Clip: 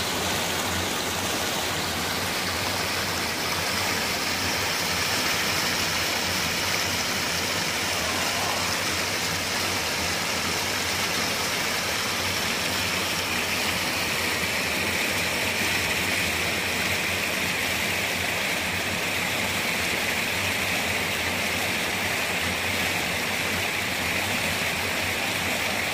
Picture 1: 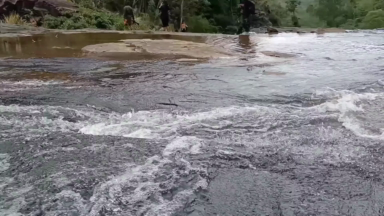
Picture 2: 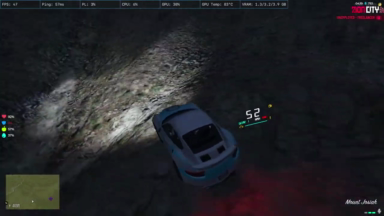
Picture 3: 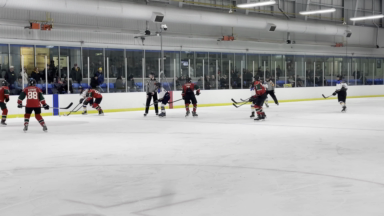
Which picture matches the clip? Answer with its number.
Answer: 1